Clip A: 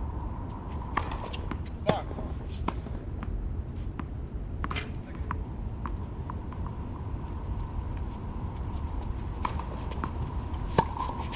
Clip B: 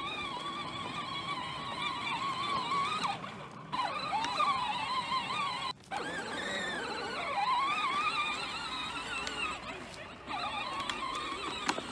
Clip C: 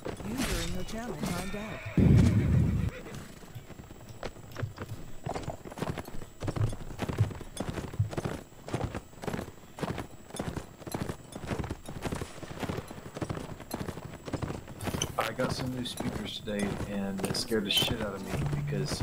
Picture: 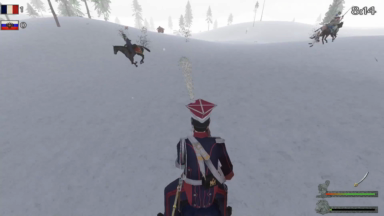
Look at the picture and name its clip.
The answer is C